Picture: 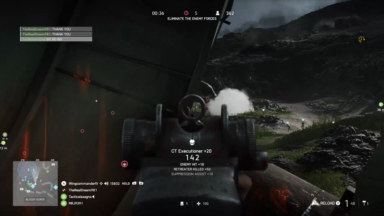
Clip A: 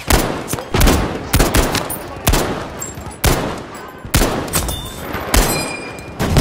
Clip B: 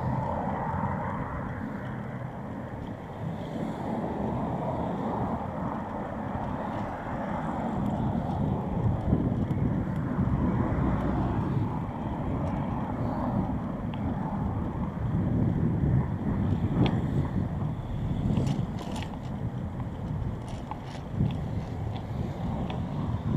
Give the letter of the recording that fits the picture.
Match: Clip A